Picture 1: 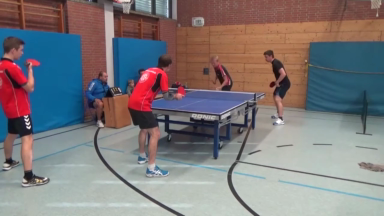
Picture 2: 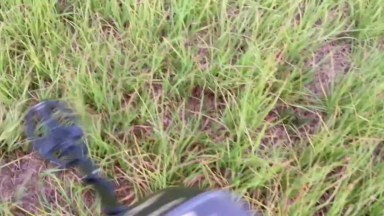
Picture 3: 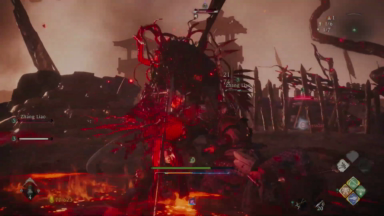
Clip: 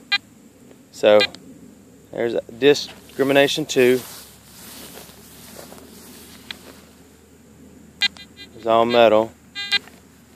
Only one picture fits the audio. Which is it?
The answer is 2